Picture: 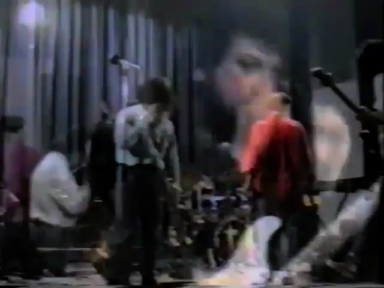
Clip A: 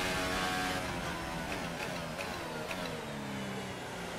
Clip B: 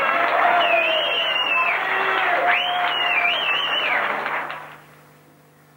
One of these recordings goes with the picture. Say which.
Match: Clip B